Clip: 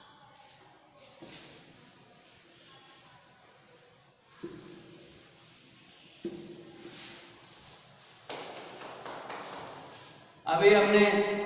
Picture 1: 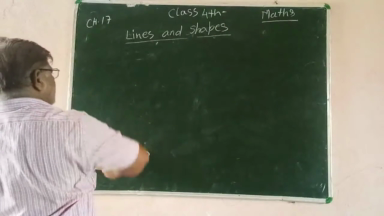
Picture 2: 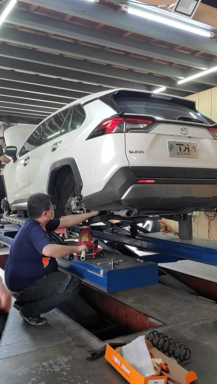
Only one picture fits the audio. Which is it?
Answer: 1